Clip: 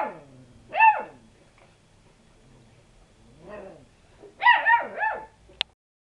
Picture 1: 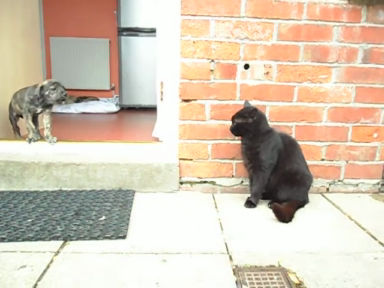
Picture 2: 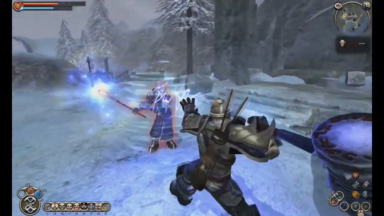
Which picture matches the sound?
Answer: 1